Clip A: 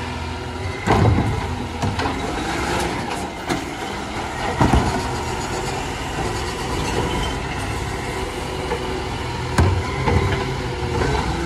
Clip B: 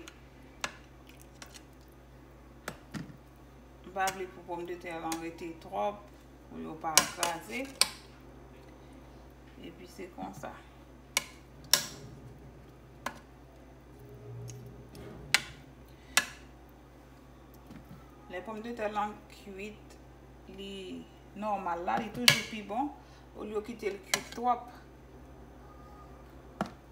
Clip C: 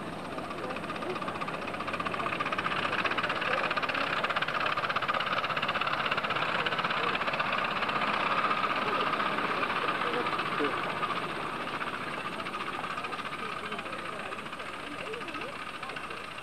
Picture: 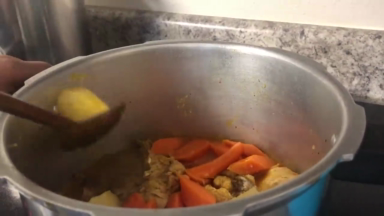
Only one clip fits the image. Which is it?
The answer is B